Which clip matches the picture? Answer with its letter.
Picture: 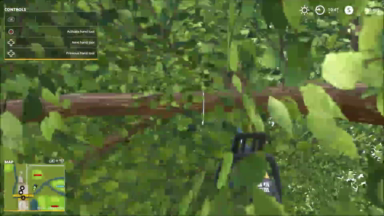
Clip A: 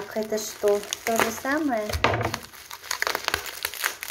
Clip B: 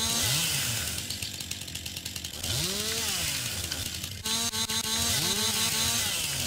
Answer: B